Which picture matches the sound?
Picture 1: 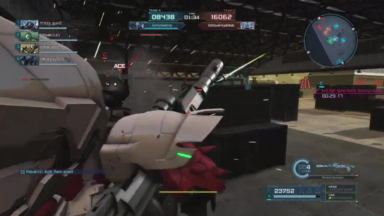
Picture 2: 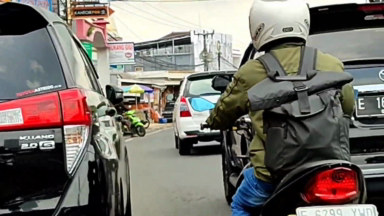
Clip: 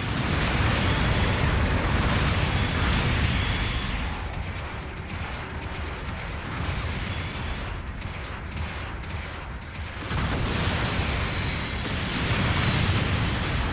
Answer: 1